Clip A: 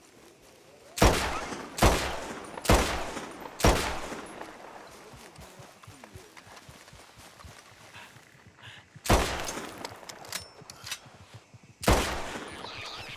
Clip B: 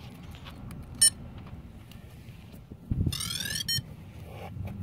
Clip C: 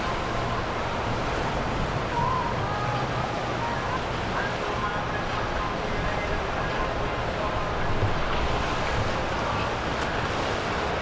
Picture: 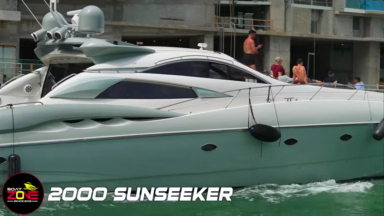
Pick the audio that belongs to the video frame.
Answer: C